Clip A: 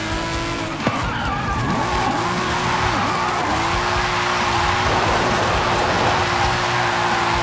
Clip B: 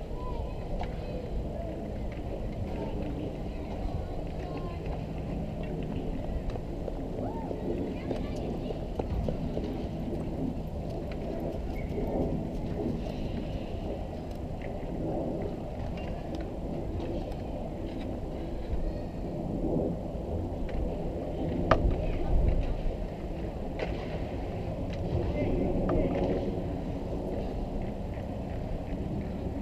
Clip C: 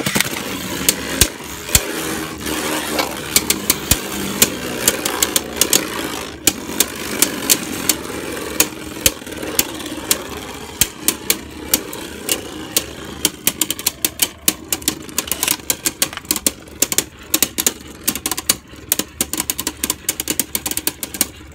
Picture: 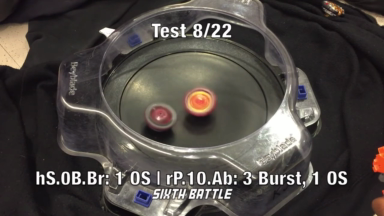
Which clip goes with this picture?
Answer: C